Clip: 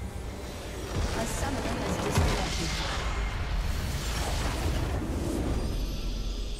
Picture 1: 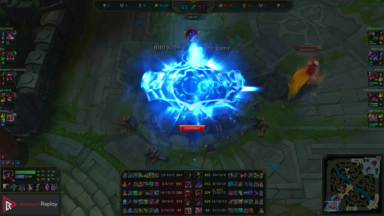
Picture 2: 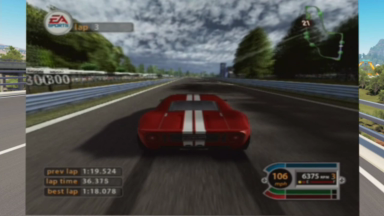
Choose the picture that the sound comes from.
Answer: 1